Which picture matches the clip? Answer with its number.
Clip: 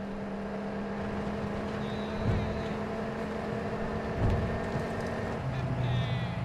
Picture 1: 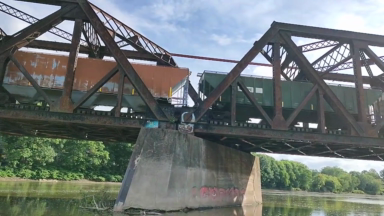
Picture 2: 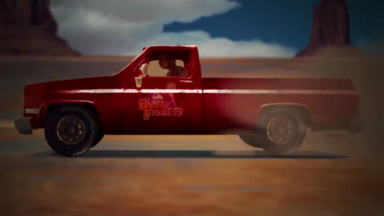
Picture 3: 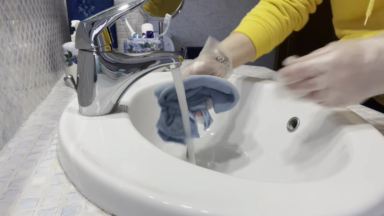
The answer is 2